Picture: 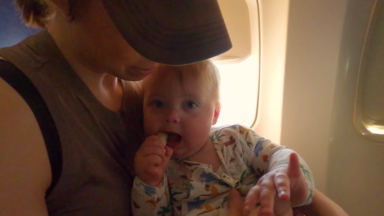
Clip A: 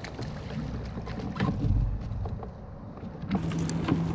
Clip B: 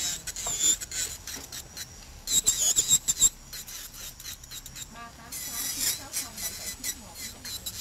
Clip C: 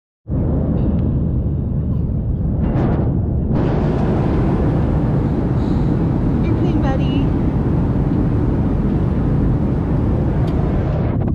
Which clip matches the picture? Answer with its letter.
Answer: C